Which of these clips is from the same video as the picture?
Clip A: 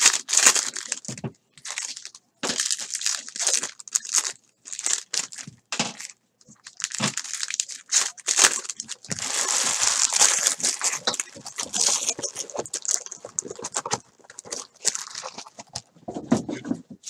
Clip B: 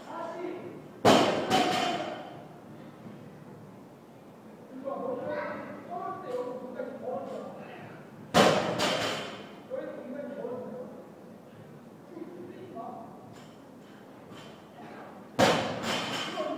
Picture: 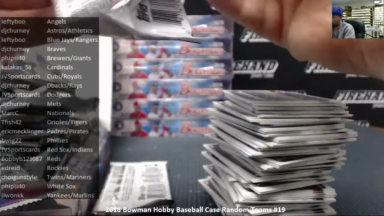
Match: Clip A